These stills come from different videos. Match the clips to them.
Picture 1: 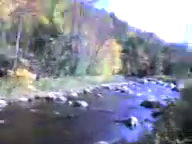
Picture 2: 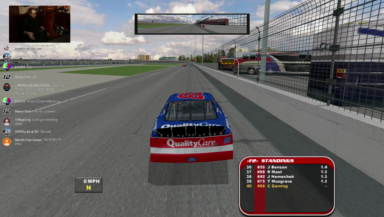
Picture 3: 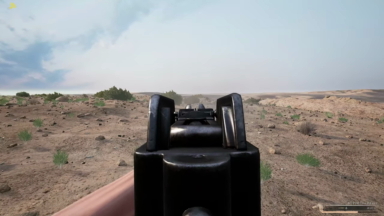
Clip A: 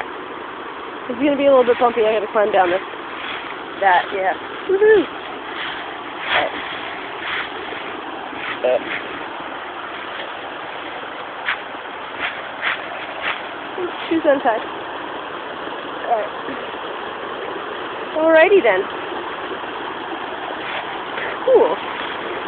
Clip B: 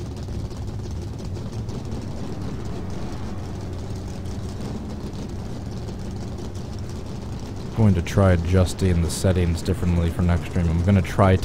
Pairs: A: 1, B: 2